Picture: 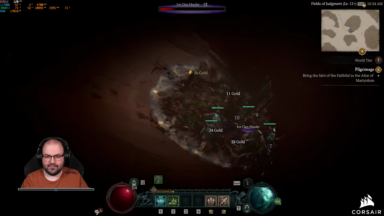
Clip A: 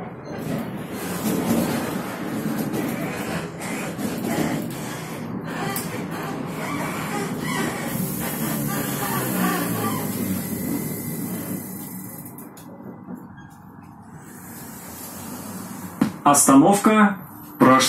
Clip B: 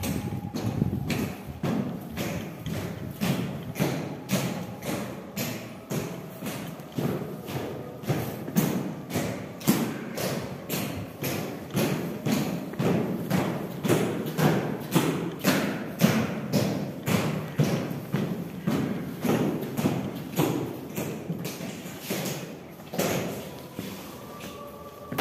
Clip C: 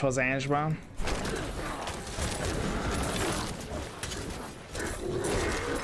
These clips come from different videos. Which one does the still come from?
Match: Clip C